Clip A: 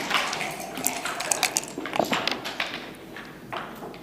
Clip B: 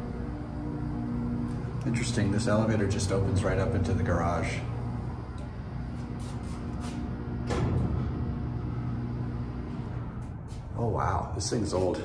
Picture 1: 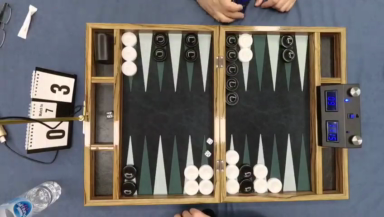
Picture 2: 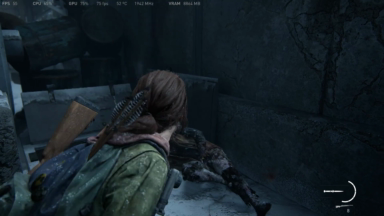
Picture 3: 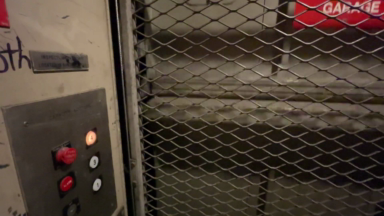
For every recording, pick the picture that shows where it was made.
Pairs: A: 1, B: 3